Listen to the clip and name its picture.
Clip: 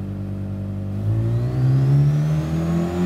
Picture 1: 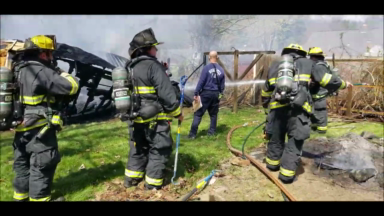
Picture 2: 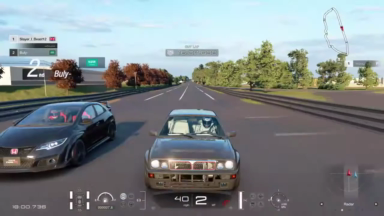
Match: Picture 2